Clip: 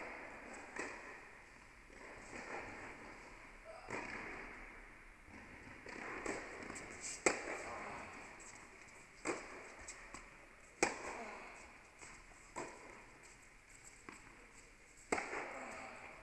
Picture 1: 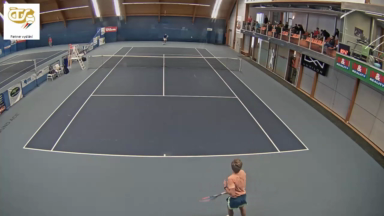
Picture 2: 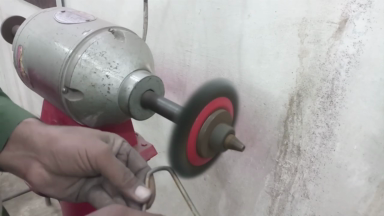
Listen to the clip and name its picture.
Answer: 1